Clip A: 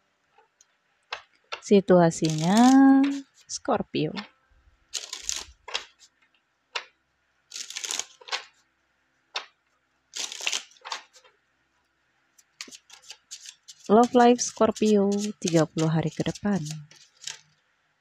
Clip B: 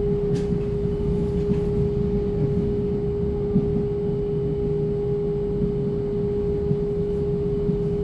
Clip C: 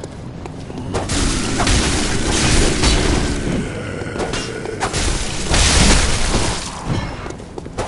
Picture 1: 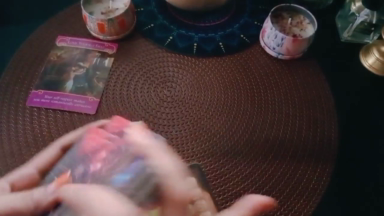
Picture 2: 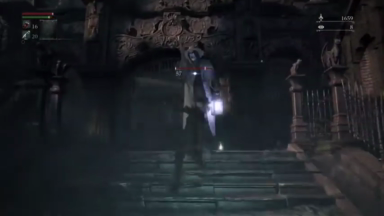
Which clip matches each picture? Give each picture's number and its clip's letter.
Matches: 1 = A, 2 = C